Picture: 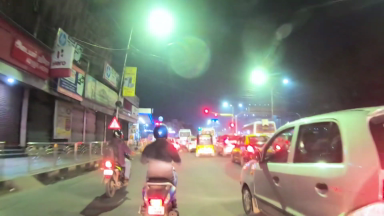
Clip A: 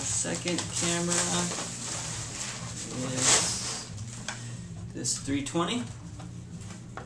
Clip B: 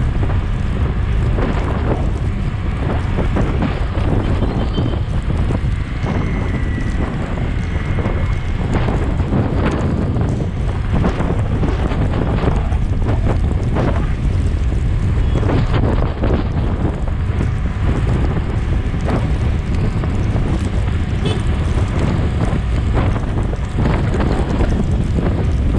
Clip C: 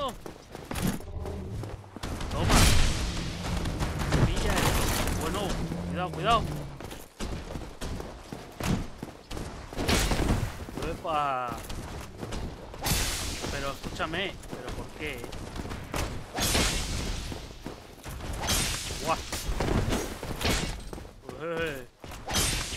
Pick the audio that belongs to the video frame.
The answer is B